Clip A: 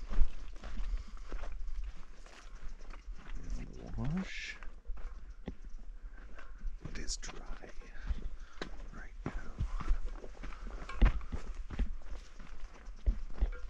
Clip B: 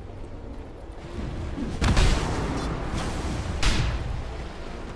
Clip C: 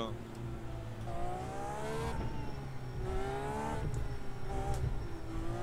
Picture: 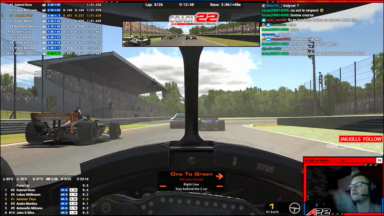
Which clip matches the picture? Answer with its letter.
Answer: C